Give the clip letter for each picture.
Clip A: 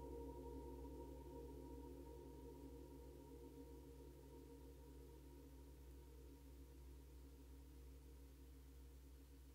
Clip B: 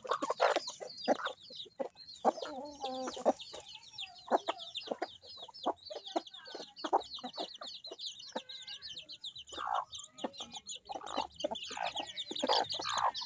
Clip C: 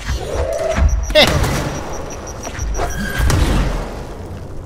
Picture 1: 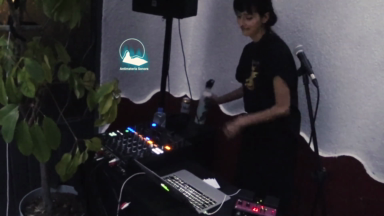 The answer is A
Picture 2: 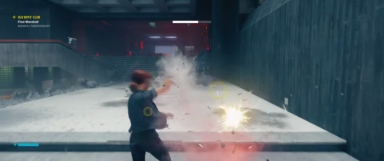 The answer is C